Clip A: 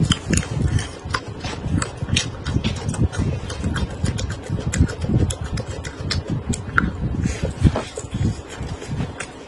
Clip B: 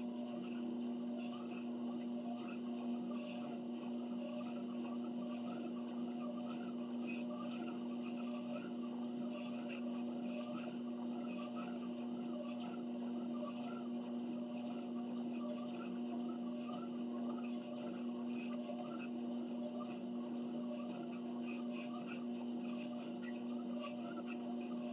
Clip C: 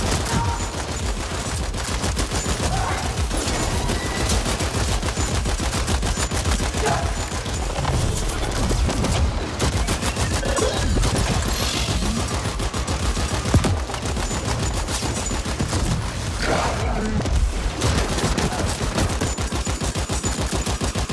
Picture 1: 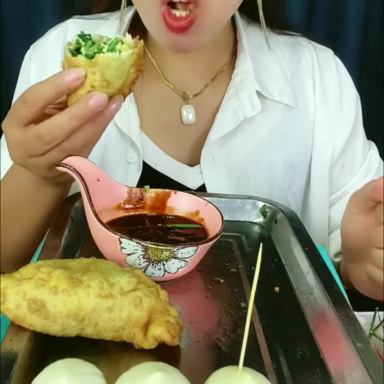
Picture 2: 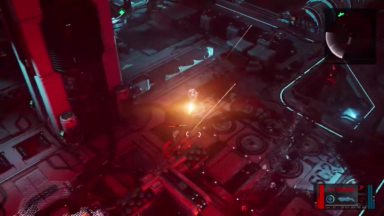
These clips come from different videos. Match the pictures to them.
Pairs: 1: A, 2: C